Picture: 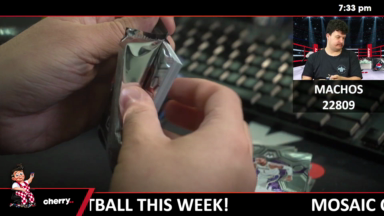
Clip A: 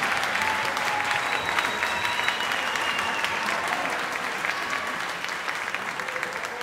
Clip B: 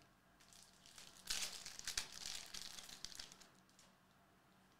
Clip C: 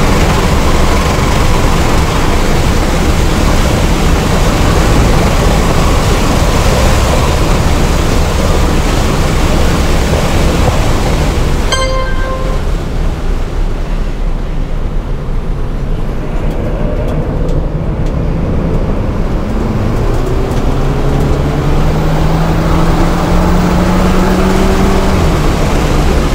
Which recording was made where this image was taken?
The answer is B